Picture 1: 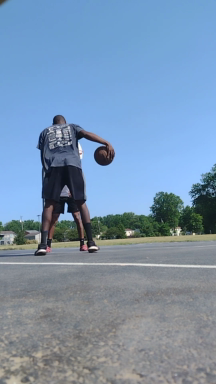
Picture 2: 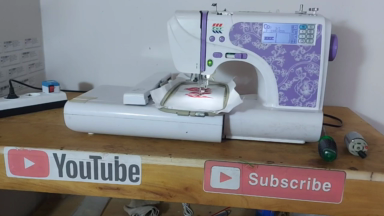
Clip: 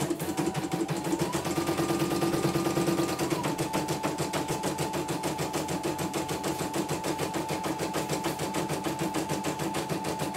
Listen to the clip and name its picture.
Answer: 2